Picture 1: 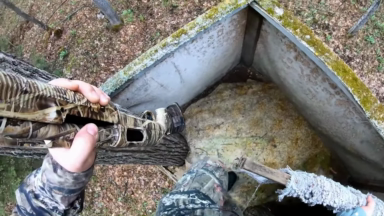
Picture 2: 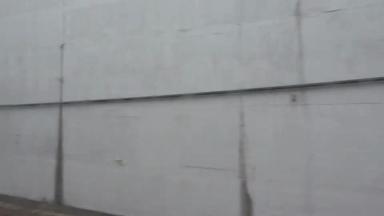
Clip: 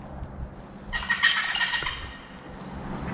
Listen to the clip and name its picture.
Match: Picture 1